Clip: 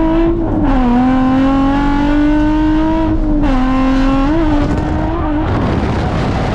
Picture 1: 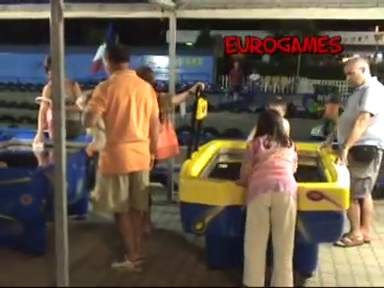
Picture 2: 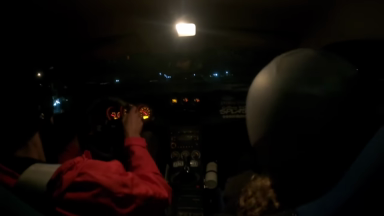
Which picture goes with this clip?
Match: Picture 2